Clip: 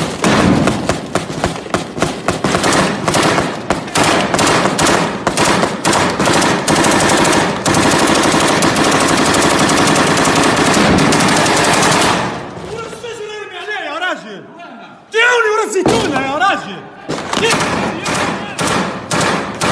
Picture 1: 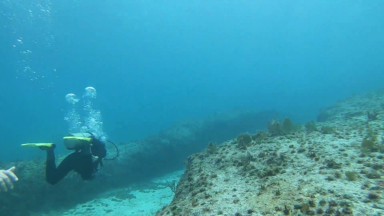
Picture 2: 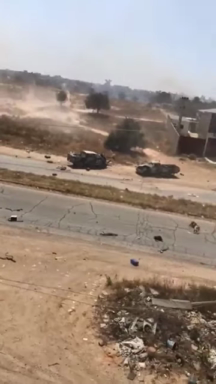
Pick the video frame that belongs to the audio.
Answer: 2